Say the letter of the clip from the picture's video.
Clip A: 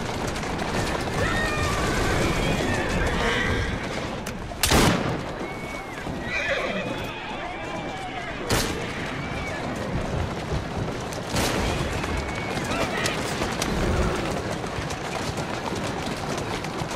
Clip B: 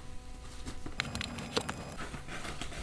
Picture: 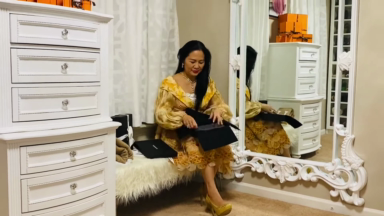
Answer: B